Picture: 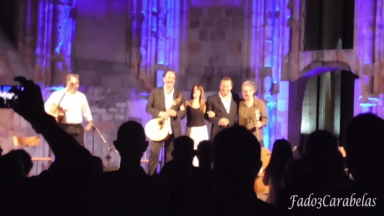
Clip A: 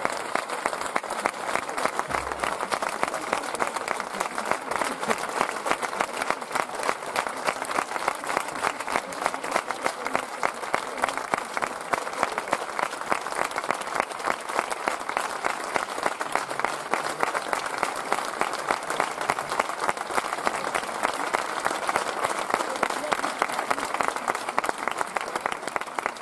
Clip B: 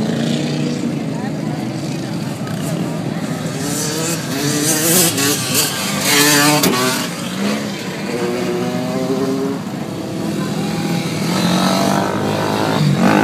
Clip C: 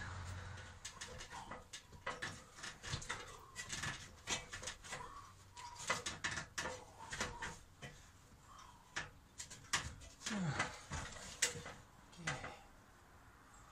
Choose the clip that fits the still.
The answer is A